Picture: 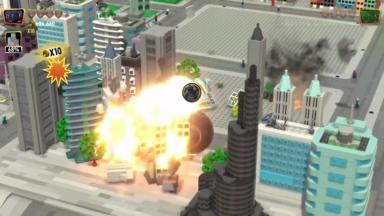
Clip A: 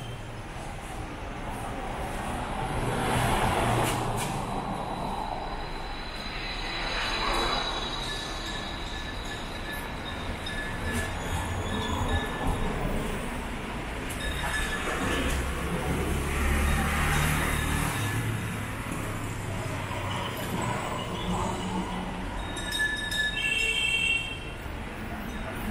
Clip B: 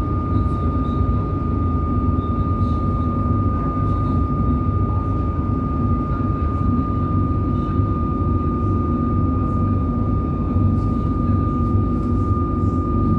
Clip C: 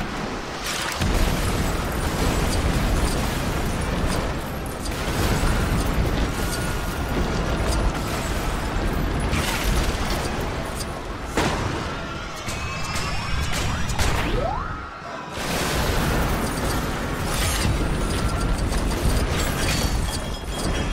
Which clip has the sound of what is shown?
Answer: C